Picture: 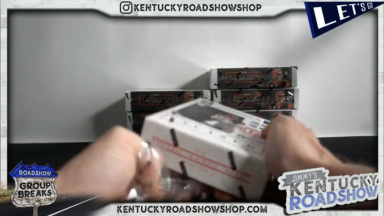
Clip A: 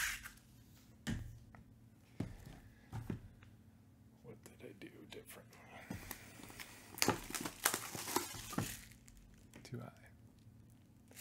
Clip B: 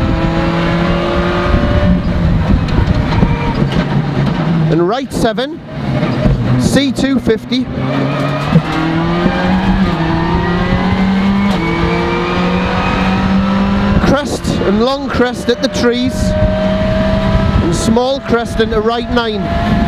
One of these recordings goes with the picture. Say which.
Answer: A